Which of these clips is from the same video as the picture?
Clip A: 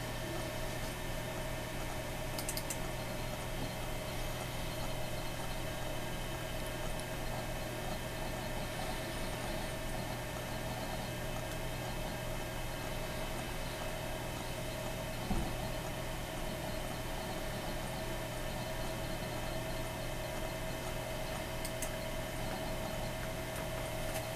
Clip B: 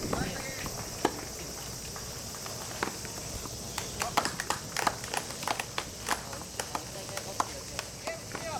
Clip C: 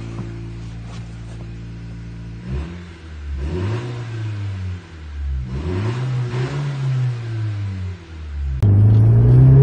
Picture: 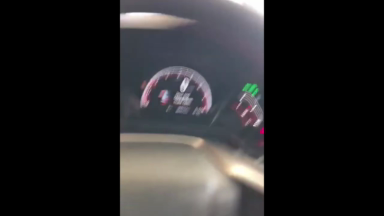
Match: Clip C